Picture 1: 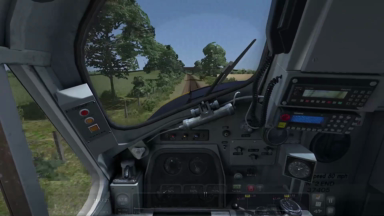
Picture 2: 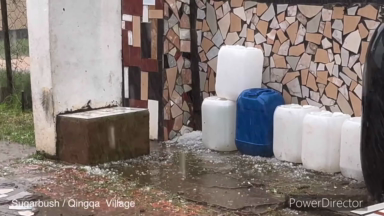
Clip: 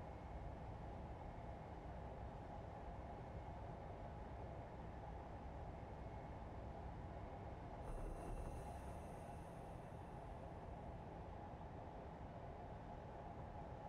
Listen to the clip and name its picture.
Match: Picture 1